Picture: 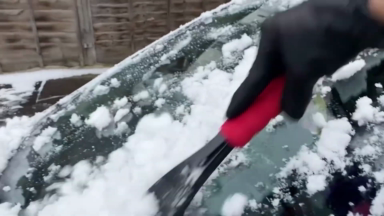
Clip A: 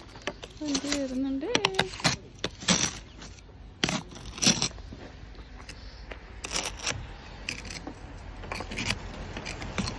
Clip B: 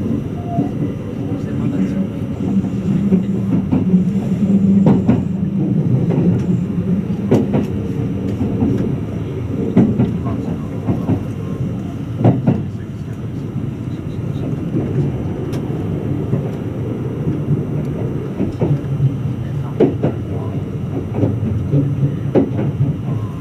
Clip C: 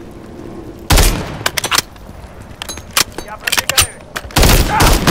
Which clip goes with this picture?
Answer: A